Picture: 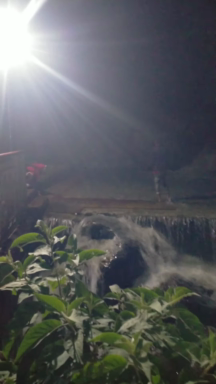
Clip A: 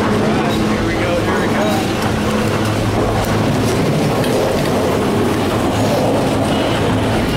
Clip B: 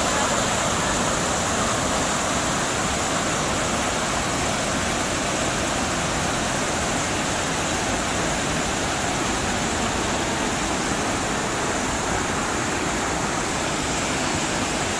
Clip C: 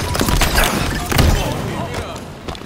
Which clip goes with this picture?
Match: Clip B